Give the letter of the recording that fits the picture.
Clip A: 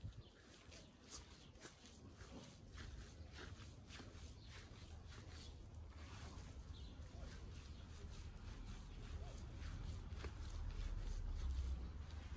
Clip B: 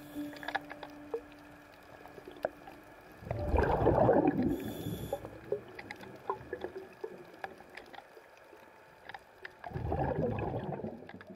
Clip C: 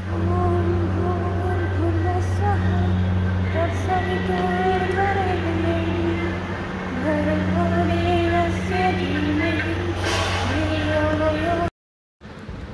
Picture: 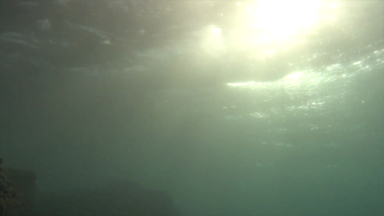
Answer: B